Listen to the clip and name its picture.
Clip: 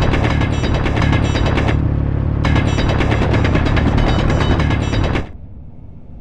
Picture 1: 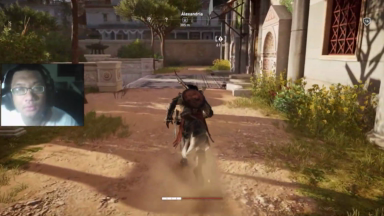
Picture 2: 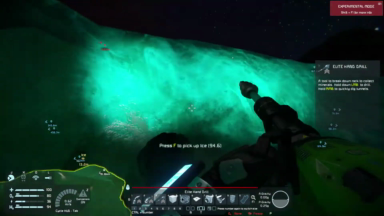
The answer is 2